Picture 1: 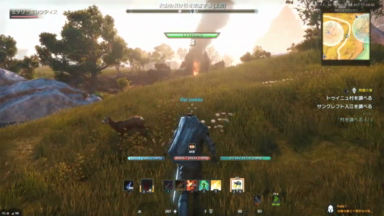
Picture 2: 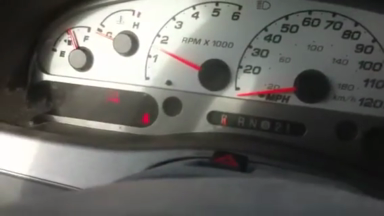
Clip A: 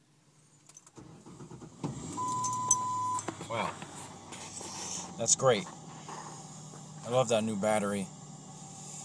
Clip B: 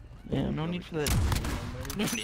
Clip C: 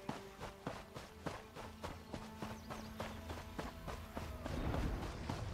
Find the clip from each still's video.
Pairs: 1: C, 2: A